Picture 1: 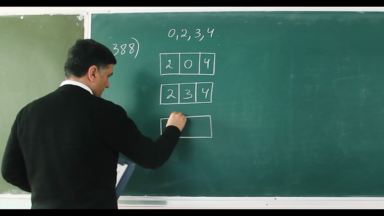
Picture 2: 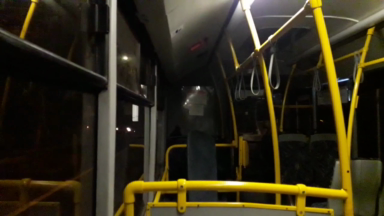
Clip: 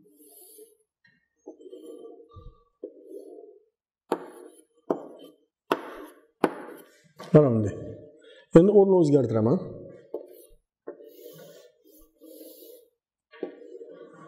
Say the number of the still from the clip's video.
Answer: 1